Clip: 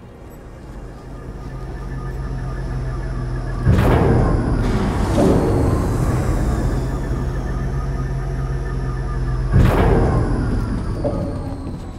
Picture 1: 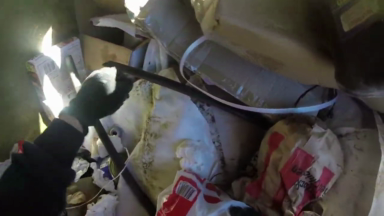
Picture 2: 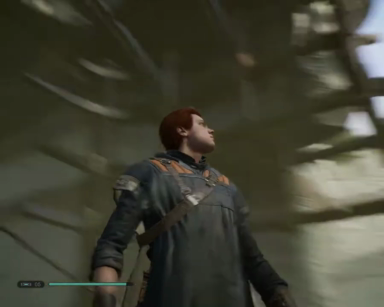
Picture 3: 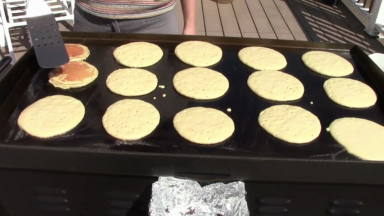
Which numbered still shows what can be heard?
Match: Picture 2